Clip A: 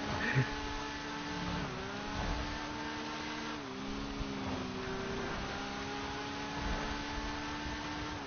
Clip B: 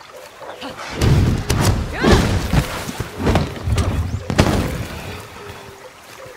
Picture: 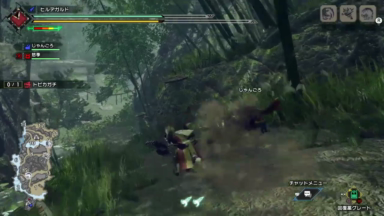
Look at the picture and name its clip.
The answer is B